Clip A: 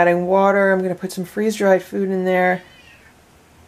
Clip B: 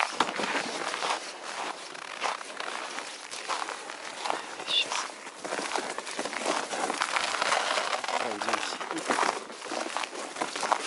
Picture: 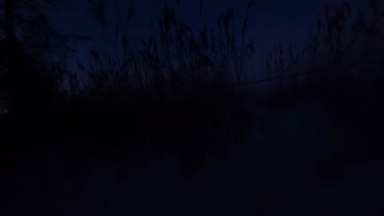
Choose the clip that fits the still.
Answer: B